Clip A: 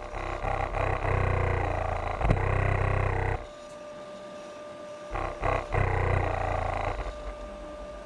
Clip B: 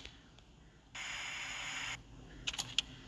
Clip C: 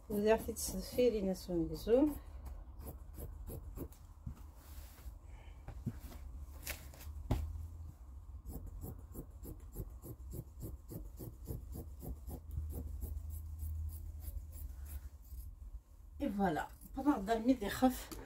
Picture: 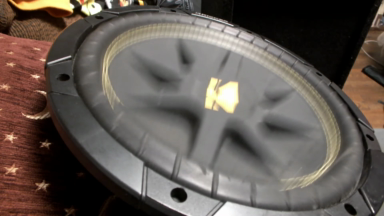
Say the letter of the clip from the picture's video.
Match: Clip A